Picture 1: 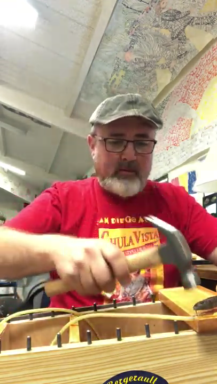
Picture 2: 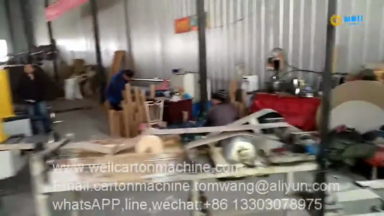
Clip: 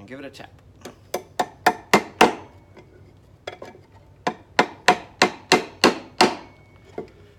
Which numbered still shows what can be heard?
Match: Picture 1